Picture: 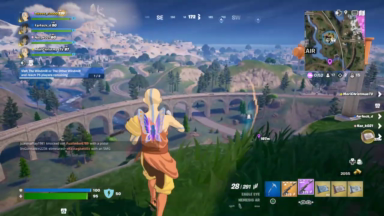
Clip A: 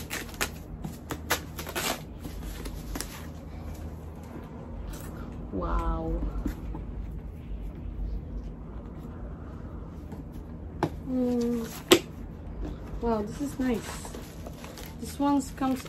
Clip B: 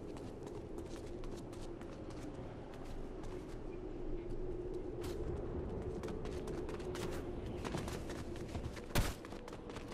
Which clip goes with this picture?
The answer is B